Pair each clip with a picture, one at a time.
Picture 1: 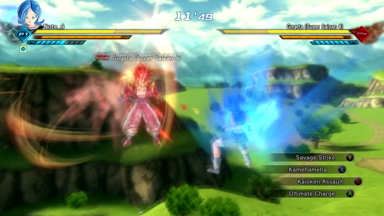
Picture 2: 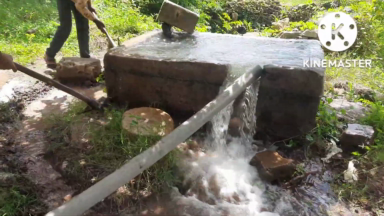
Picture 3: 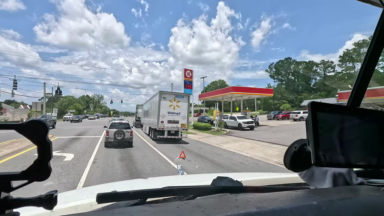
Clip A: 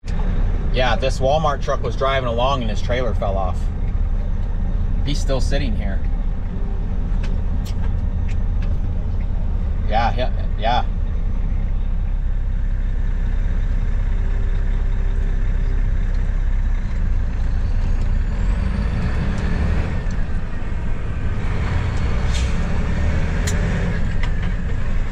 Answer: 3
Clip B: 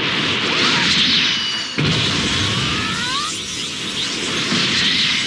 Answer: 1